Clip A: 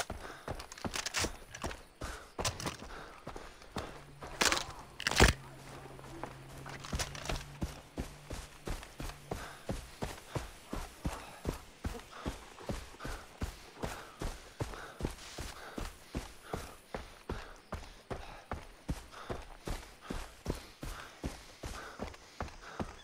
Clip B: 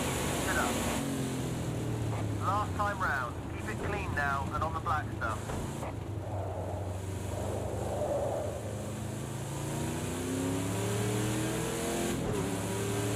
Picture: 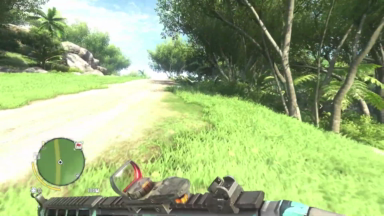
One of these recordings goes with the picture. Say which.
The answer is A